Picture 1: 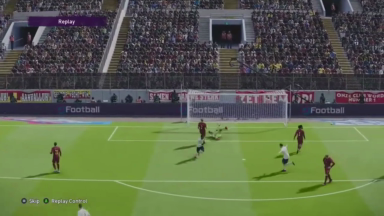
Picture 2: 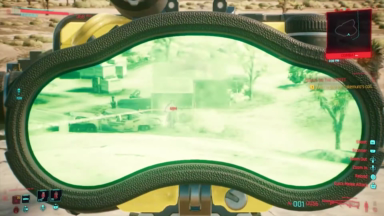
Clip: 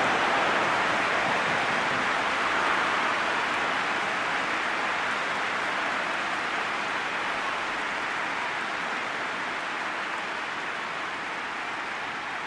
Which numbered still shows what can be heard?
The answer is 1